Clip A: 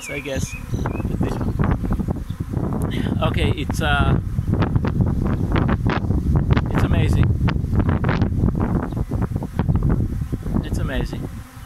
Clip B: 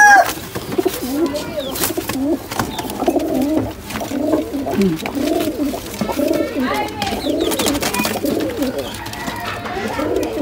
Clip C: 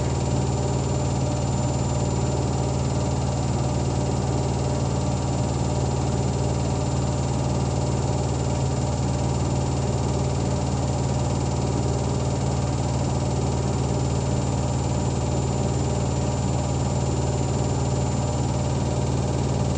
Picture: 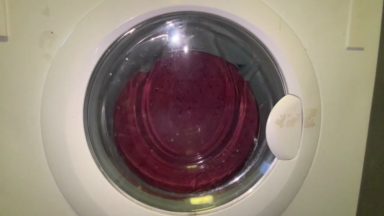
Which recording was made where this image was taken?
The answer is C